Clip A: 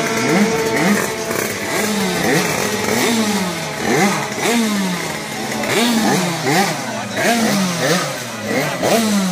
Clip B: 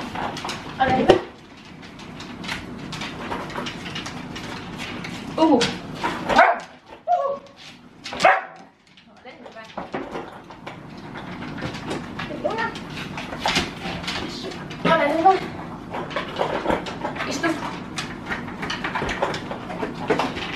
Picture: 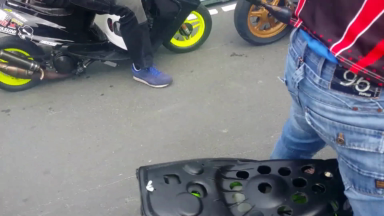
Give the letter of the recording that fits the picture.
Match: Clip A